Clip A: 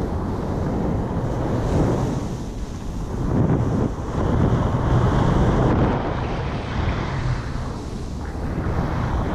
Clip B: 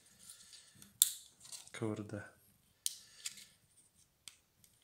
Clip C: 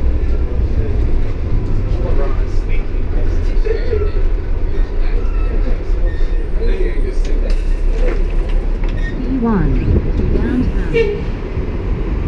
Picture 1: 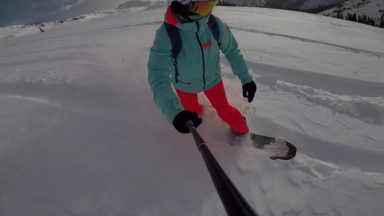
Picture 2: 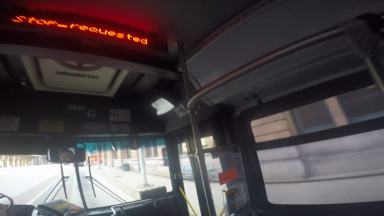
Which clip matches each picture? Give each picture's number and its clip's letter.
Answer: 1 A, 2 C